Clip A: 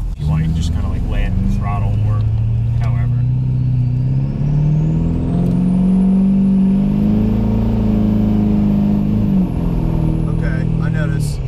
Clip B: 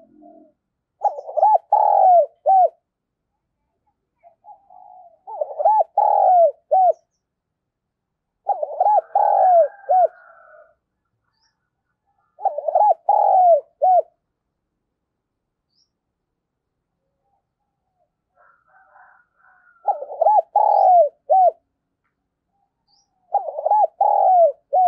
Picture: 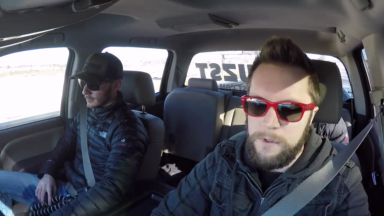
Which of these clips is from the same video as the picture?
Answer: A